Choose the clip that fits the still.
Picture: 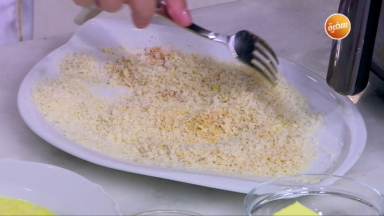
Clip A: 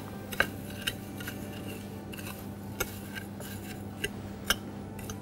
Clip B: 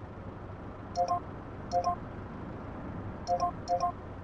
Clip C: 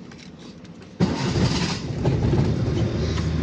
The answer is A